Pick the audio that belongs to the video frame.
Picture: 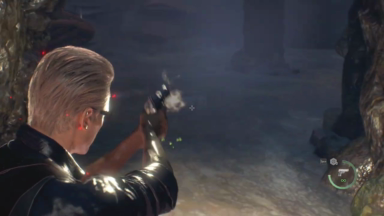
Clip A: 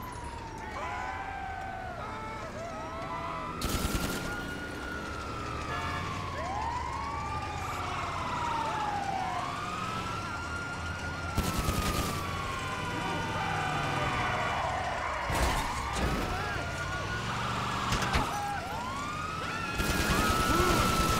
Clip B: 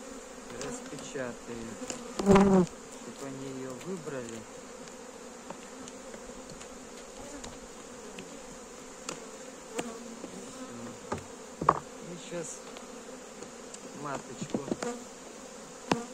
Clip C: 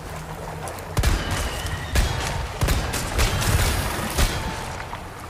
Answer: C